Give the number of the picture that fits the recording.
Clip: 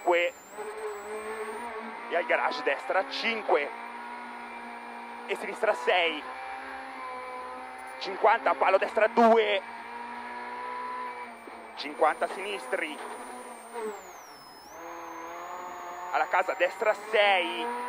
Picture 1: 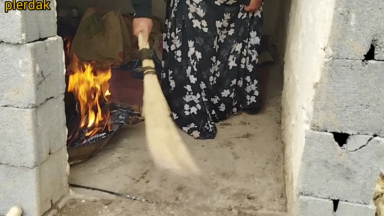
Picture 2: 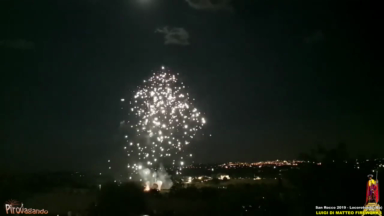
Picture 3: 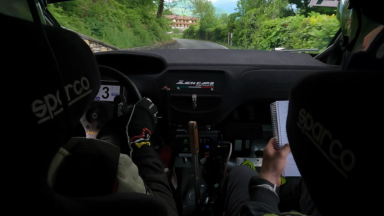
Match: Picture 3